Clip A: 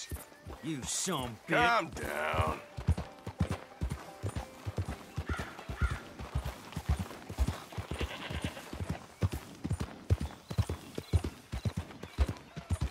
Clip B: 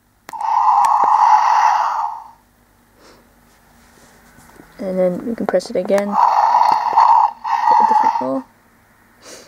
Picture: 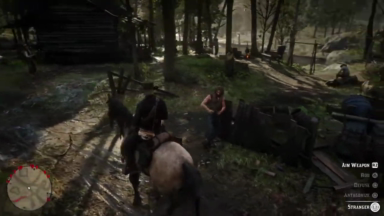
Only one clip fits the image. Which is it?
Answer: A